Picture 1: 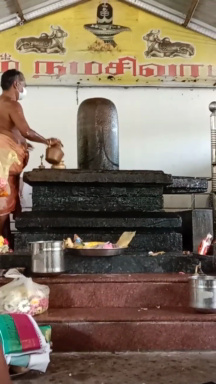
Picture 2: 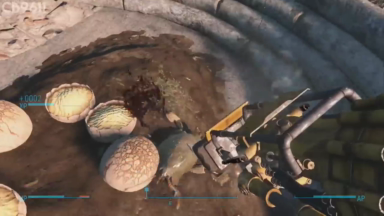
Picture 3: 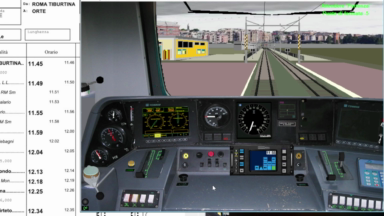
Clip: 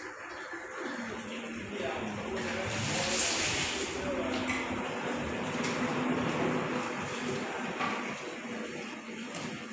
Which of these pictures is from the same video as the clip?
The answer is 1